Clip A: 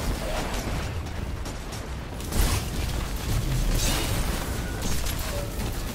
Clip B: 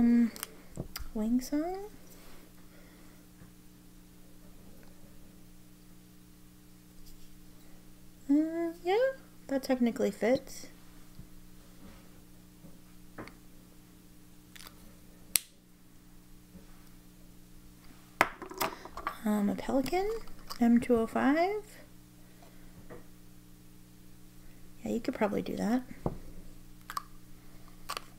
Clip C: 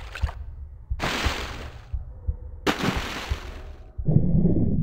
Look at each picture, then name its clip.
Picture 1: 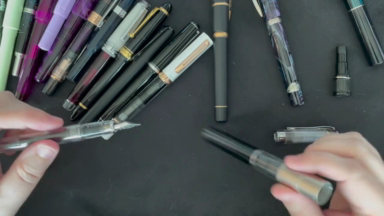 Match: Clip B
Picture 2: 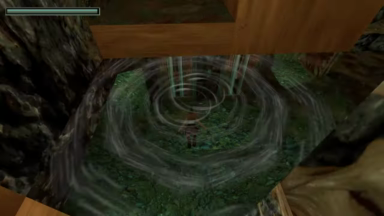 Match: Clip C